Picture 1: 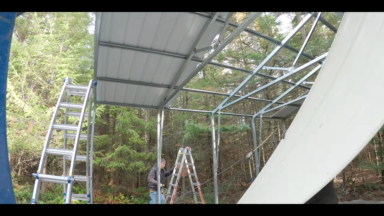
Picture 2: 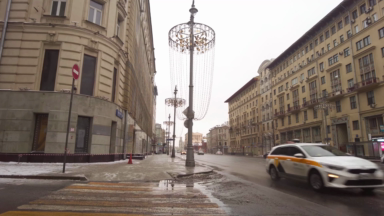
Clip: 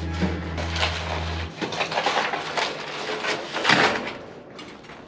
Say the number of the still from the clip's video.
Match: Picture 1